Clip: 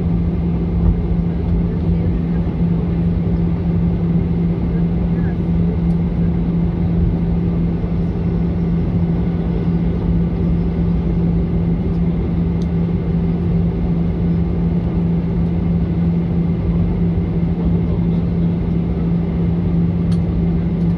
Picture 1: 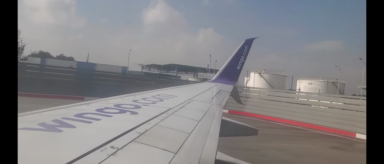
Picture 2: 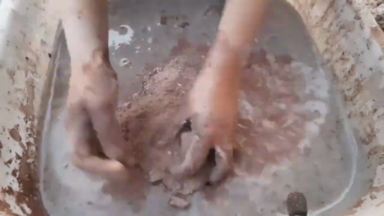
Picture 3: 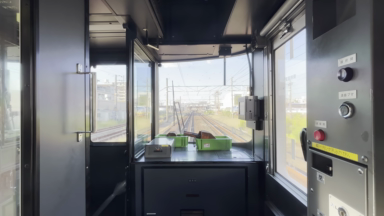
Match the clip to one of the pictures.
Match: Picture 1